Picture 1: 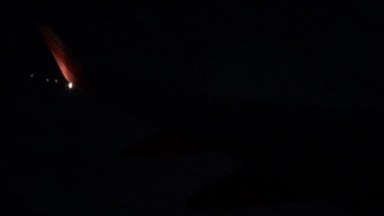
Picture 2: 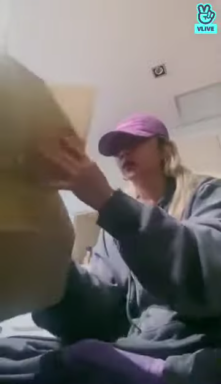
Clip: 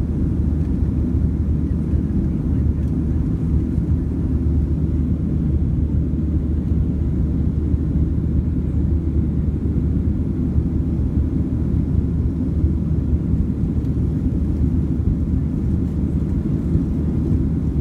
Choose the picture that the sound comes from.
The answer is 1